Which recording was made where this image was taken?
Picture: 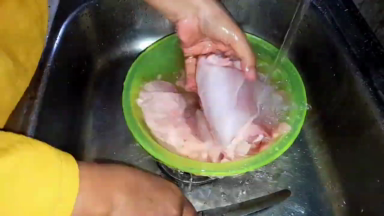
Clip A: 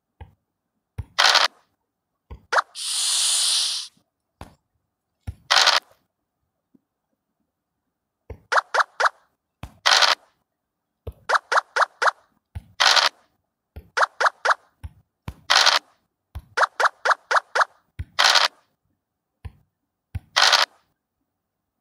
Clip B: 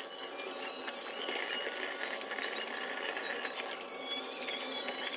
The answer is B